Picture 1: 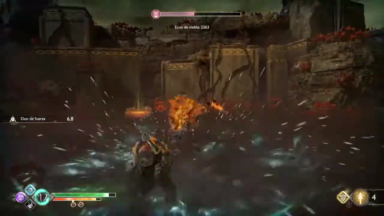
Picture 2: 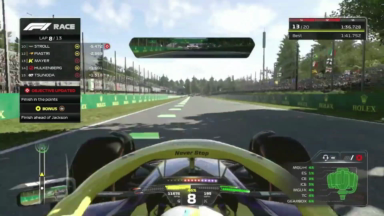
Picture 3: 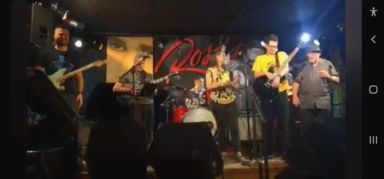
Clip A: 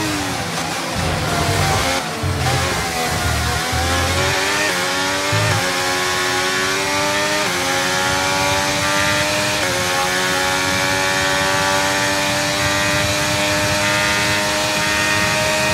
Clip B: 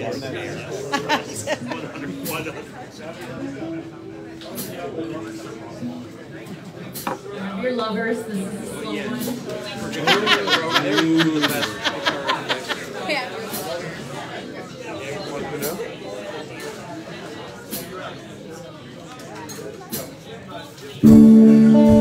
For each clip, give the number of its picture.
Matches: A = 2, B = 3